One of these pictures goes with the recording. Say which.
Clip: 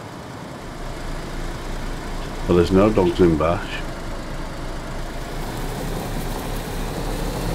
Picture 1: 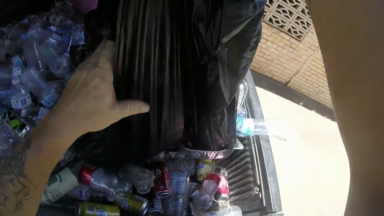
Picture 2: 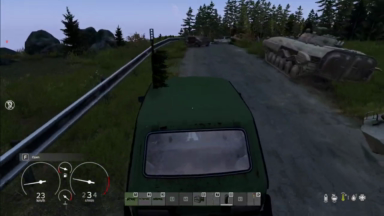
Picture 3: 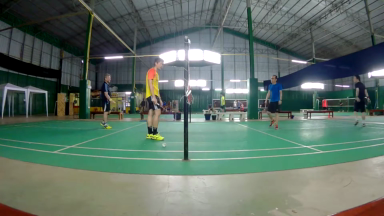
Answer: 2